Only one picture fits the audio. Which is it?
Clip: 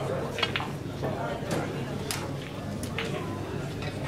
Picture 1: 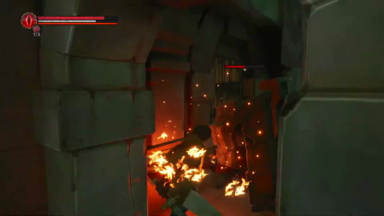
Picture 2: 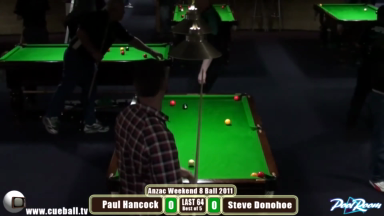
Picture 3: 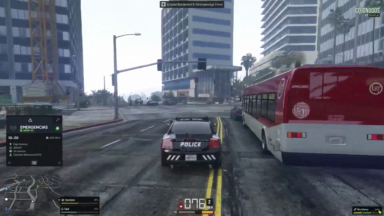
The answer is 2